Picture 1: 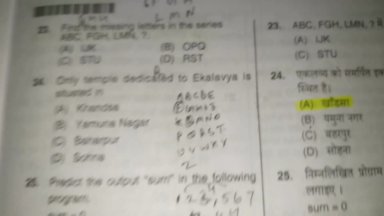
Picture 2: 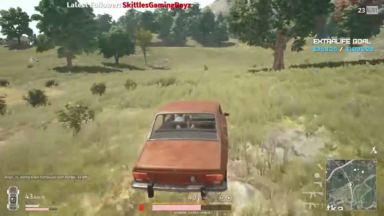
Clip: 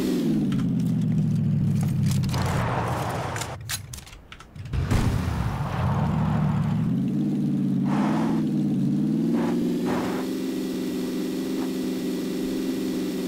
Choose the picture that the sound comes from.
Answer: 2